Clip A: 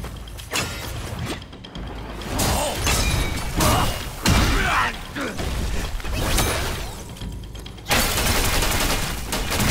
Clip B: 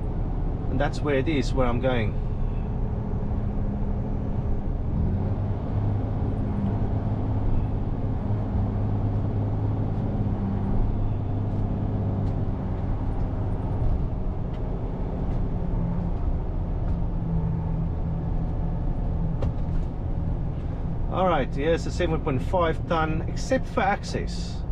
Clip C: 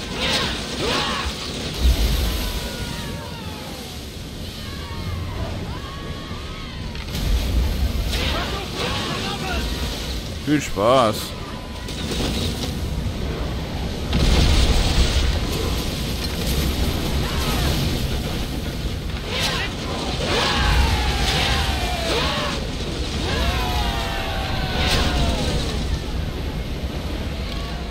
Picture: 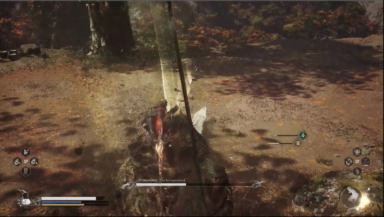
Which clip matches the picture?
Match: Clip A